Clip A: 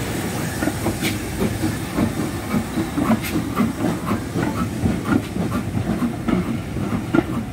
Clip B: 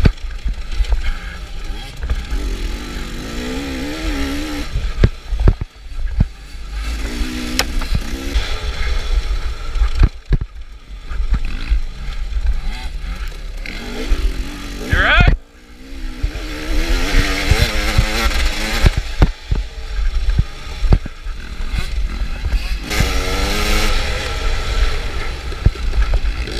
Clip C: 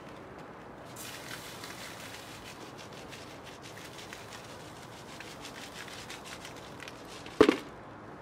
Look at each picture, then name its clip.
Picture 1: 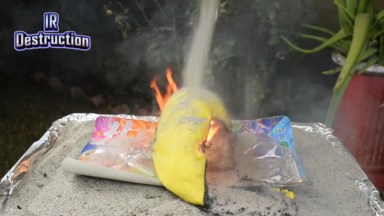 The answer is C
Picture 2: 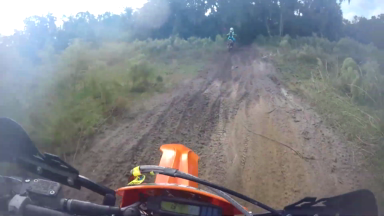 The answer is B